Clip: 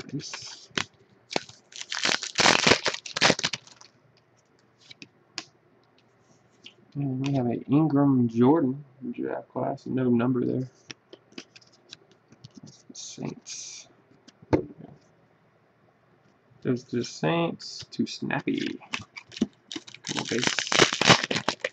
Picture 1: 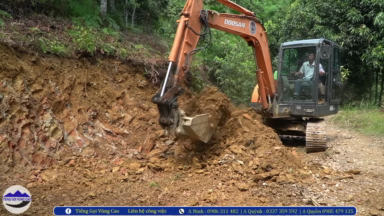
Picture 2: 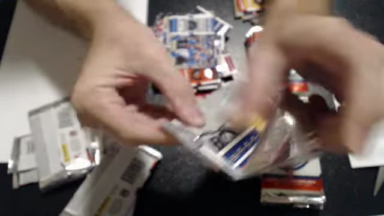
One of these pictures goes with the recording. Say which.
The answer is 2